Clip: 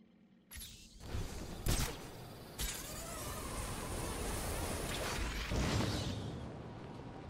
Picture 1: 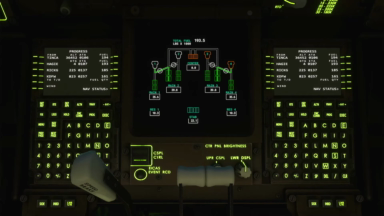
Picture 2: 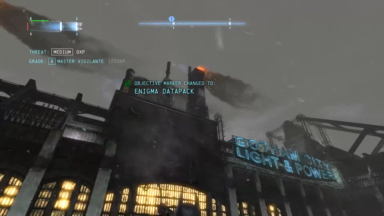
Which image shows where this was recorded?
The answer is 2